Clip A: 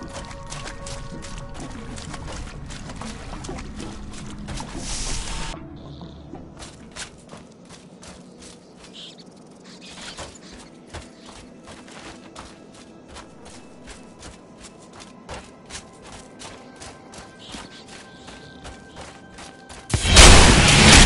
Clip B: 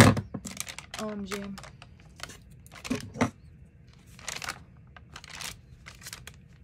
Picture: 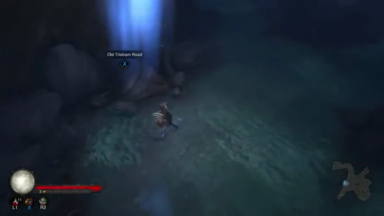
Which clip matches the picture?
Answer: A